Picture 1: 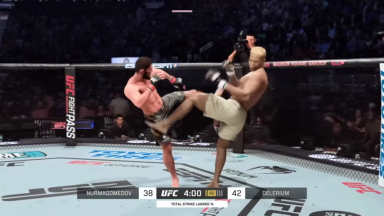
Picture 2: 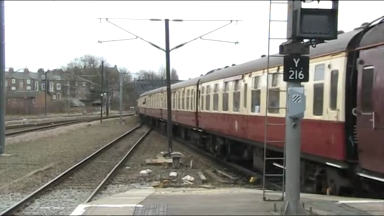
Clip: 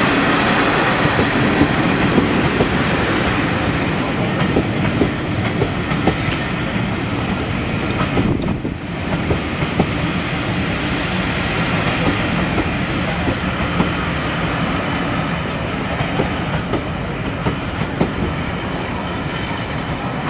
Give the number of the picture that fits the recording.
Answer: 2